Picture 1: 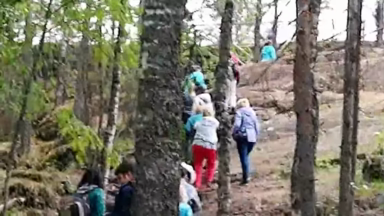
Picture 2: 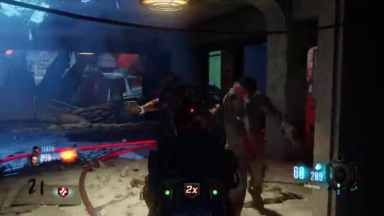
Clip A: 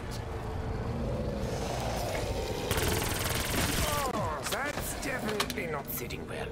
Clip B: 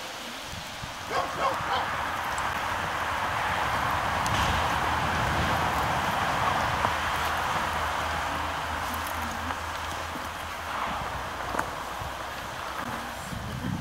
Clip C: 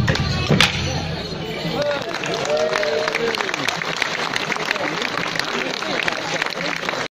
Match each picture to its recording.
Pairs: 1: B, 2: A